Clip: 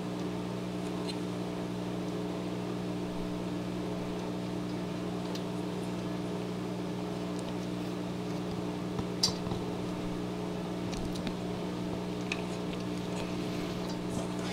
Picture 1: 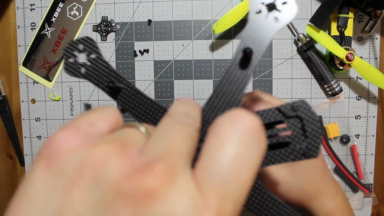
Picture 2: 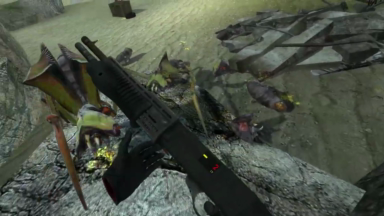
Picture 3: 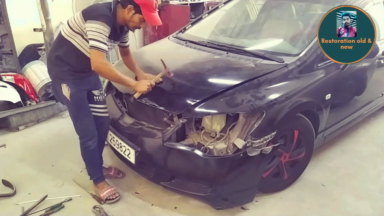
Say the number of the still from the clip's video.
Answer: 1